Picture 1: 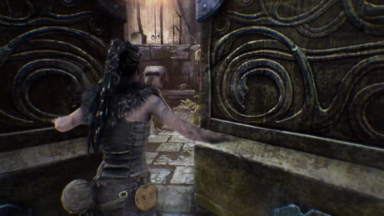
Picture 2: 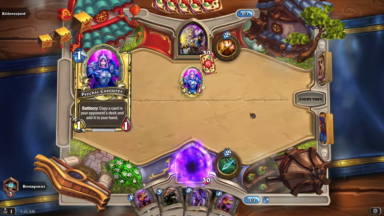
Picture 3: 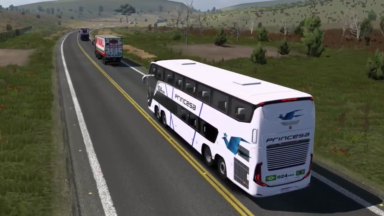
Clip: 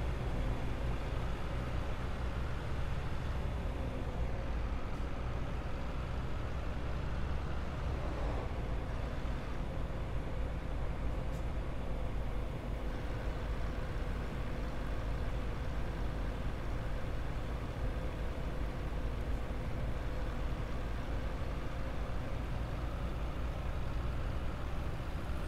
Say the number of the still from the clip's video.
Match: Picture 3